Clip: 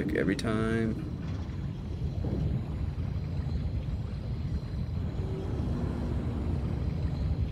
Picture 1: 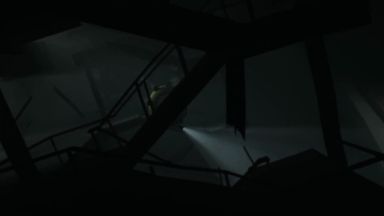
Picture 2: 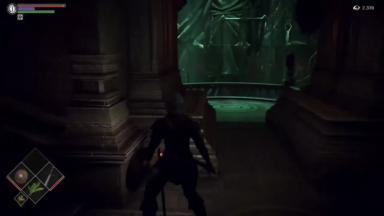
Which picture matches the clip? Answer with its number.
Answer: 1